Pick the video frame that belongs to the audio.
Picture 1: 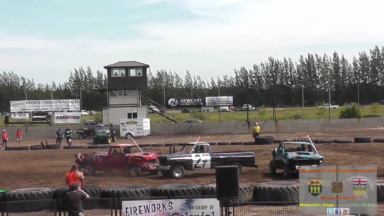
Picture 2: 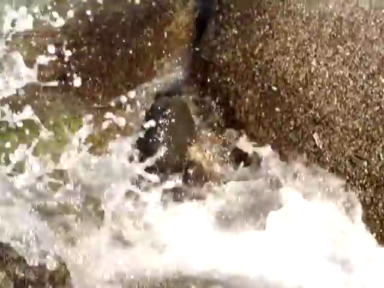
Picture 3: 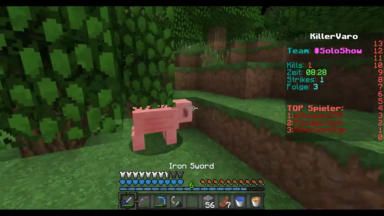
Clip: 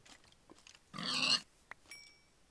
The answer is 3